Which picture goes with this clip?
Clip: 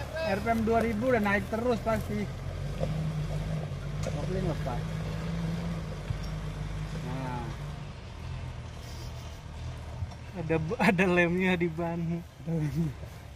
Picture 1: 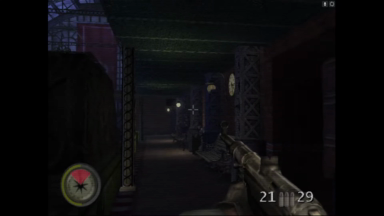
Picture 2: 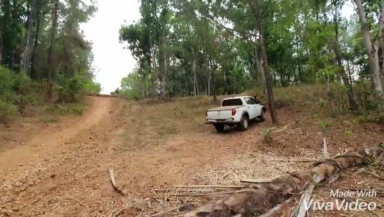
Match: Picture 2